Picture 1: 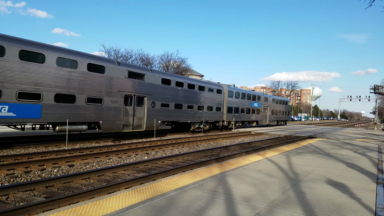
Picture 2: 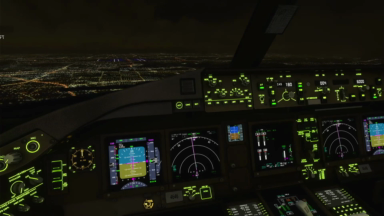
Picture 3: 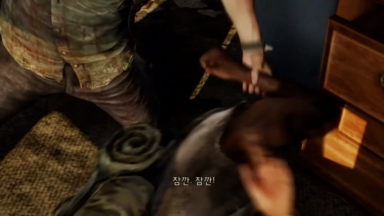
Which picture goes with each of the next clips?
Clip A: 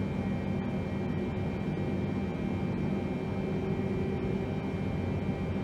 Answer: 2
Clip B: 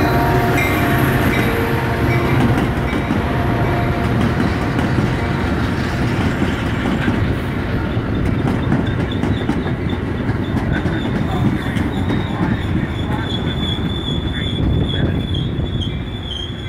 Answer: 1